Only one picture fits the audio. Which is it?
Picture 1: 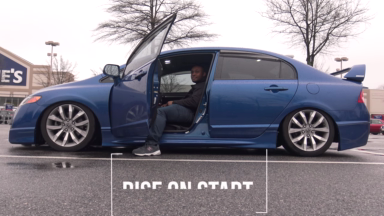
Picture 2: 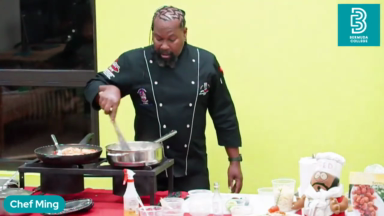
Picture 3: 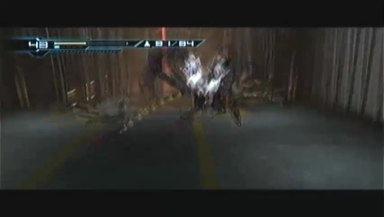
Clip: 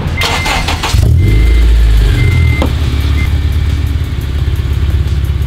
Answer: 1